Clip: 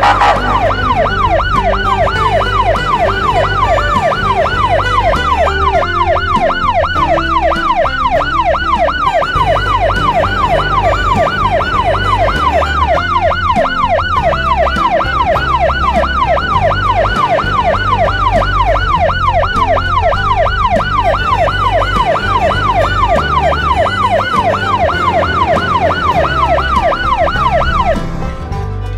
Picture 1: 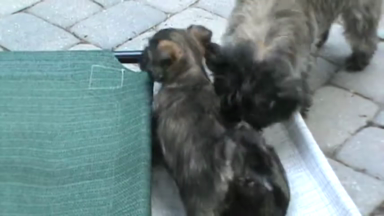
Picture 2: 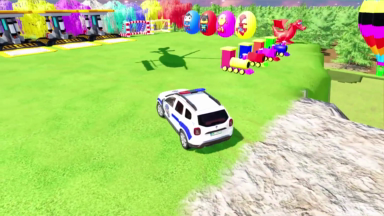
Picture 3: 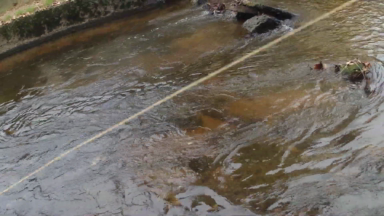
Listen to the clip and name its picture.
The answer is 2